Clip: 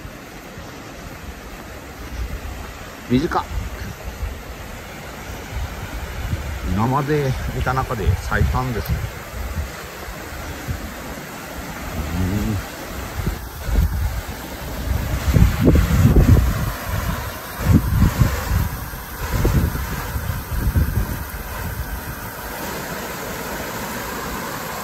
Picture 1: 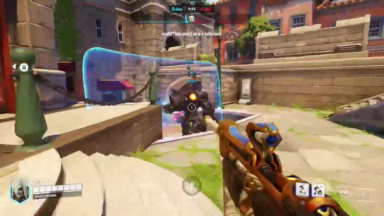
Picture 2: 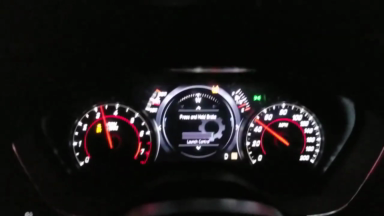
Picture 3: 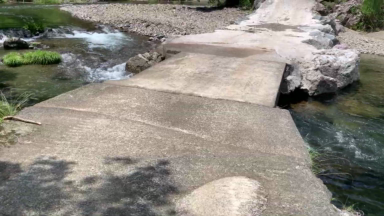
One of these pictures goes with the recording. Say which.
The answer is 3